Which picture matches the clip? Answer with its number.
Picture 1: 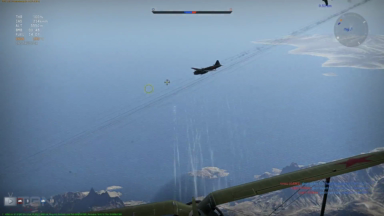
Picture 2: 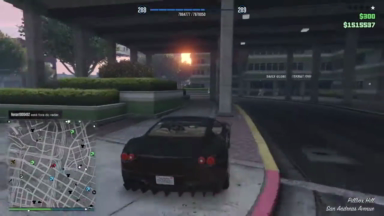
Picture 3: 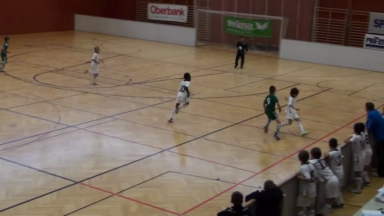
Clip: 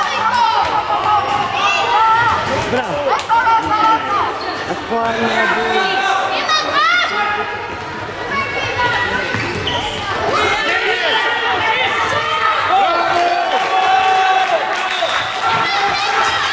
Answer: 3